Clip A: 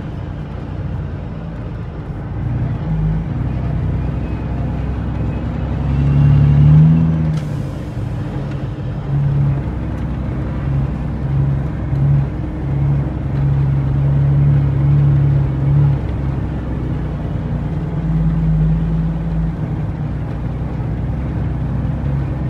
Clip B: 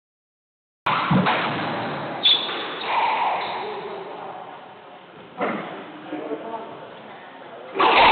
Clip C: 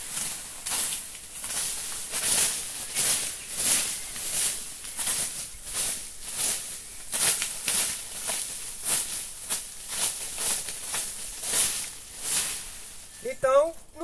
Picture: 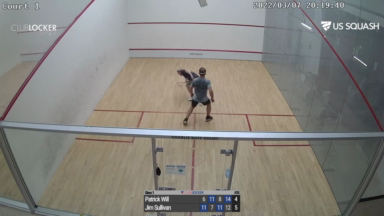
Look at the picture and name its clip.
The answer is B